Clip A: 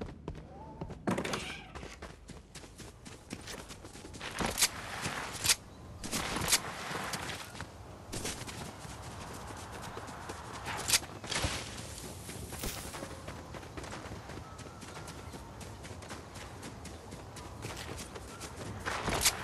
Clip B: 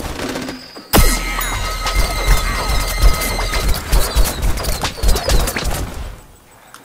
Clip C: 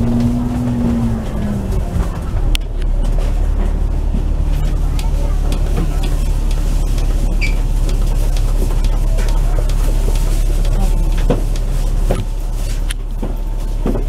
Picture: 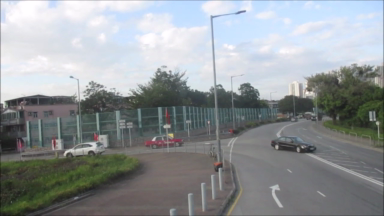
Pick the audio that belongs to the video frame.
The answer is C